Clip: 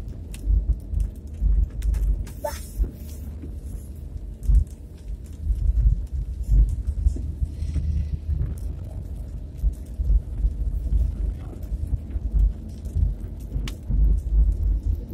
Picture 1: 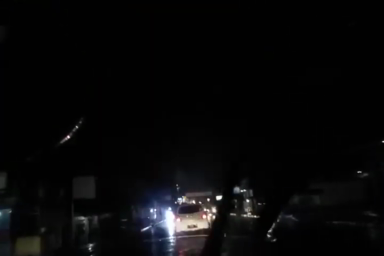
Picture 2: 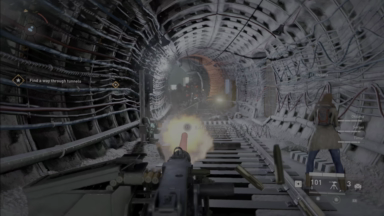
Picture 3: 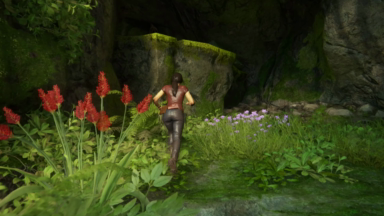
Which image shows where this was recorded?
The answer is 1